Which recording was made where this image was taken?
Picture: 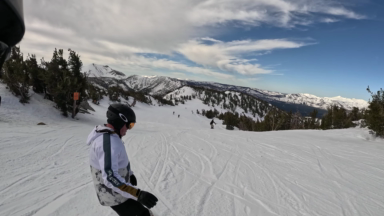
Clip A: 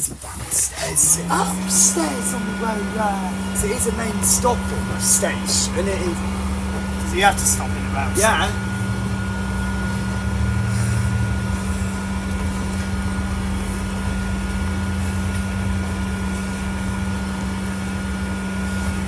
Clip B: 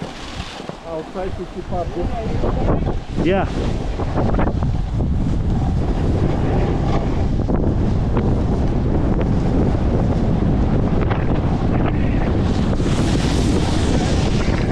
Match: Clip B